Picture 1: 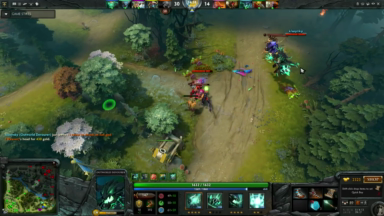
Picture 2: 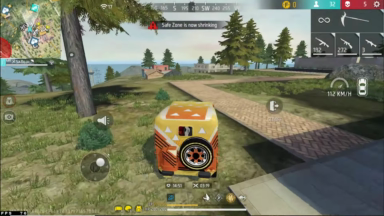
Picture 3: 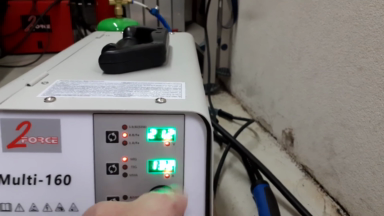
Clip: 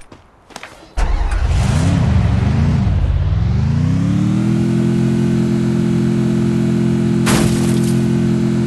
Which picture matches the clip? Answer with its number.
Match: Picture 2